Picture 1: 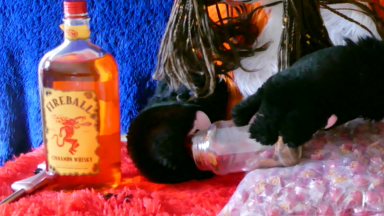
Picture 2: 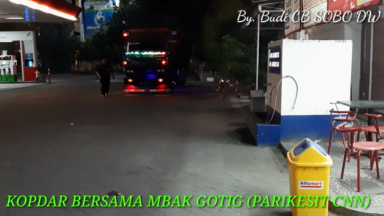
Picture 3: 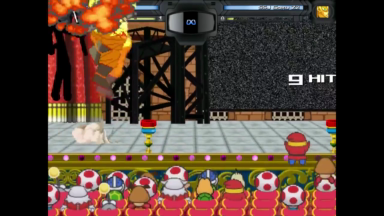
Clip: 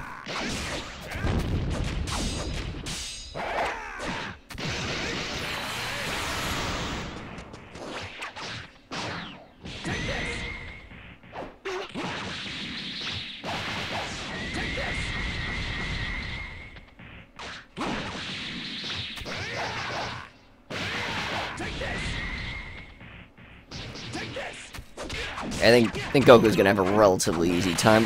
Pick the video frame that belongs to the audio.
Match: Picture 3